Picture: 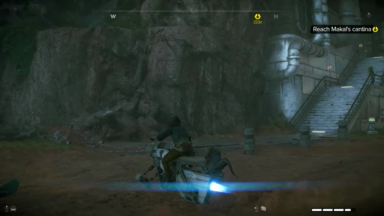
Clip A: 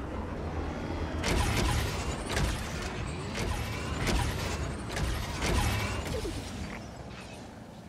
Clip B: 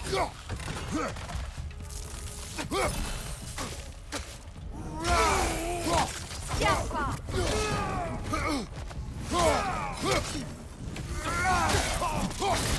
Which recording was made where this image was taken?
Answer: A